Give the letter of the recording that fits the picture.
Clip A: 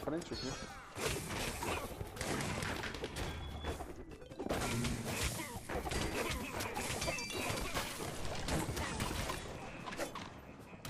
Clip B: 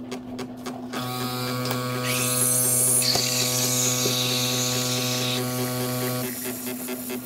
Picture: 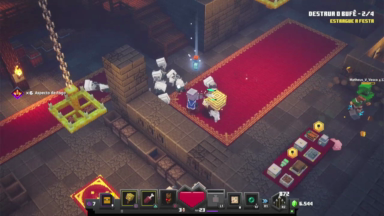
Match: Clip A